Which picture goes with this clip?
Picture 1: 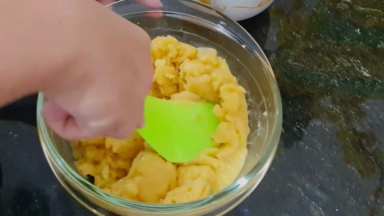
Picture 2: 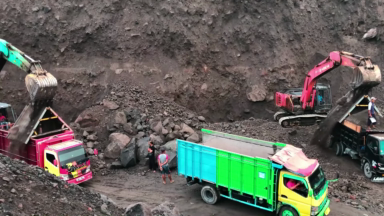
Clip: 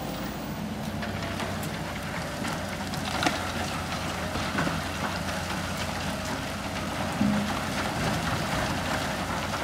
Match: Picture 2